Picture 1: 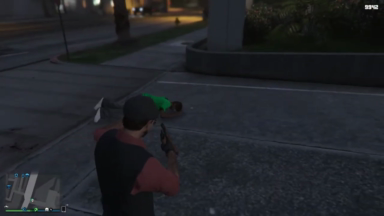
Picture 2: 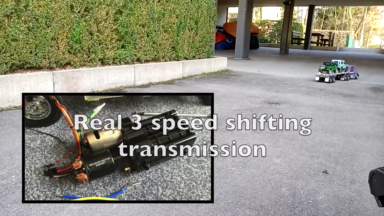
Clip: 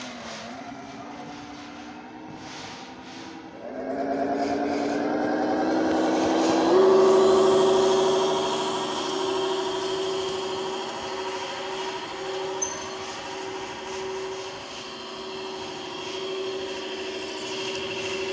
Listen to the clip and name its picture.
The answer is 2